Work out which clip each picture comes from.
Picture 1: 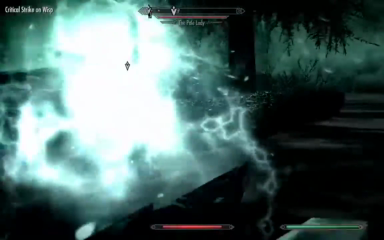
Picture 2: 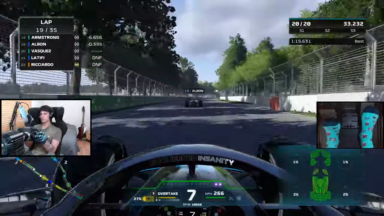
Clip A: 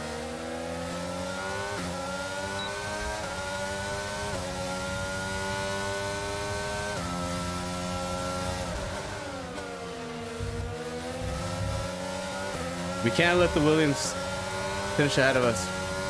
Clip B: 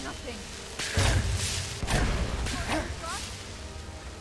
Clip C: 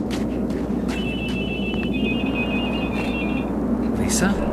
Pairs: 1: B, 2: A